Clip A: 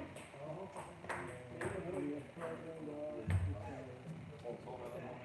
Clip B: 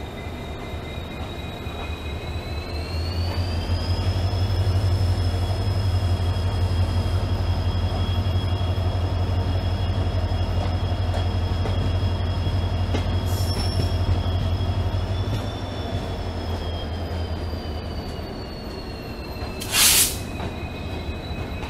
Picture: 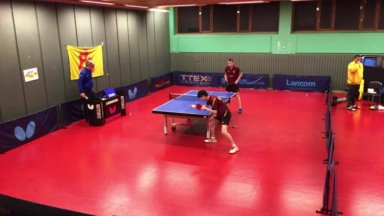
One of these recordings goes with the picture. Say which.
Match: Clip A